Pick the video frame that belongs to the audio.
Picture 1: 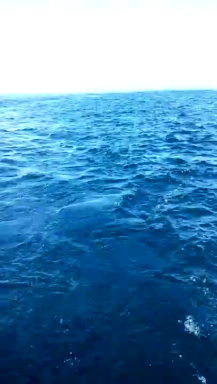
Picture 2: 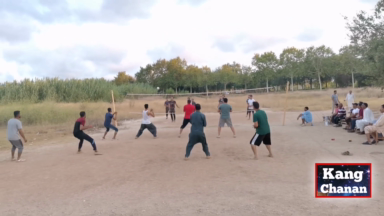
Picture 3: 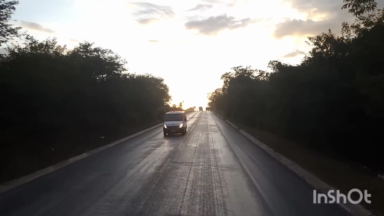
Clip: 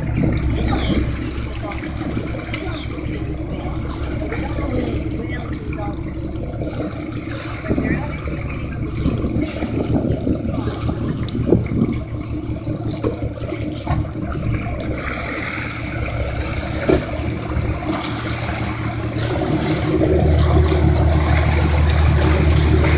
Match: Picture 1